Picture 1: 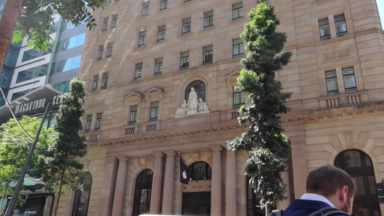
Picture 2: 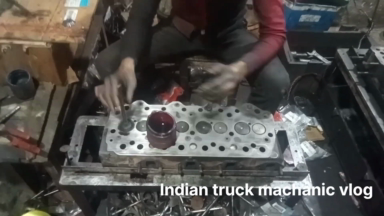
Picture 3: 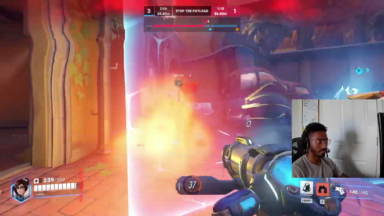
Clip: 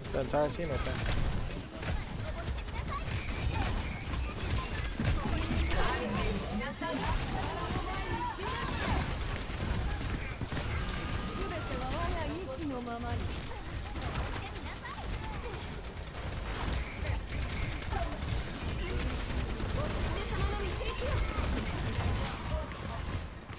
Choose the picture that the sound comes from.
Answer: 3